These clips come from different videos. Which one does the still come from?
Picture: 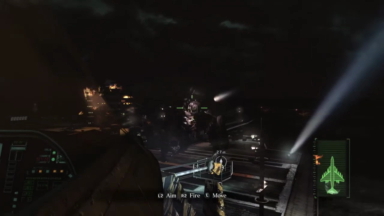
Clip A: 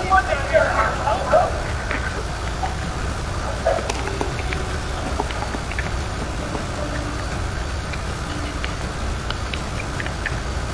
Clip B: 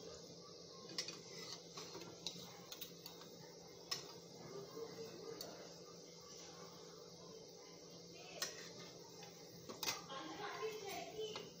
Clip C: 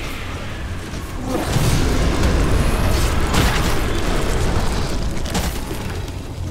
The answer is A